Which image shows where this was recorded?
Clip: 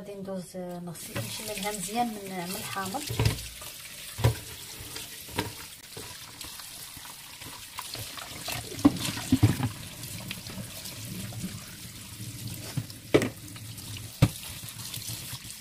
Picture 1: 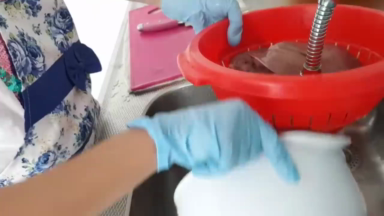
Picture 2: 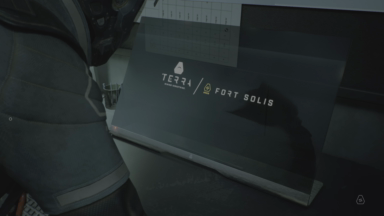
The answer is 1